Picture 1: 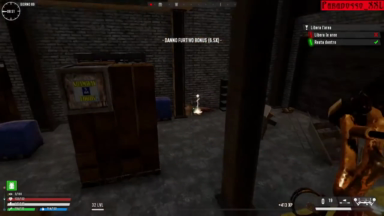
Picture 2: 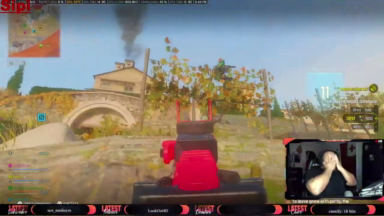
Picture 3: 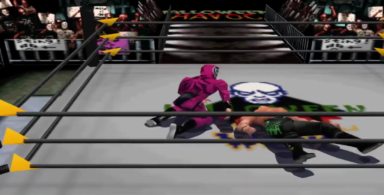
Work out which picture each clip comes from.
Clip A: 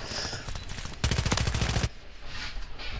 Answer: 2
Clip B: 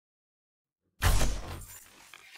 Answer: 1